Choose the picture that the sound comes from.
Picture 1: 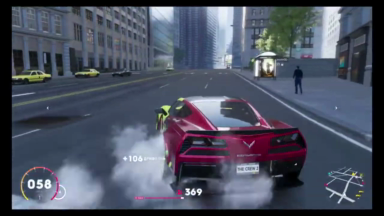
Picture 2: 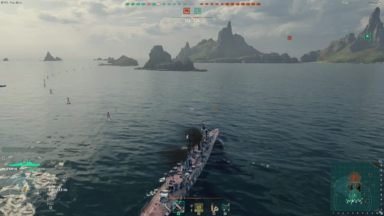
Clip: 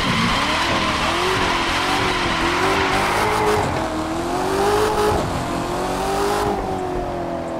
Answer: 1